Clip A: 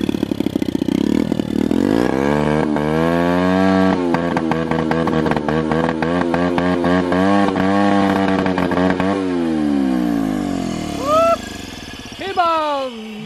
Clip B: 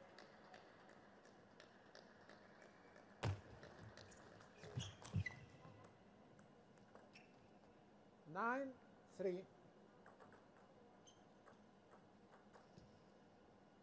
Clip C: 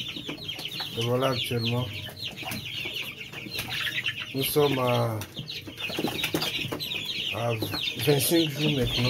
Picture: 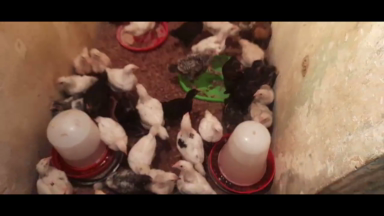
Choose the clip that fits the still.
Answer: C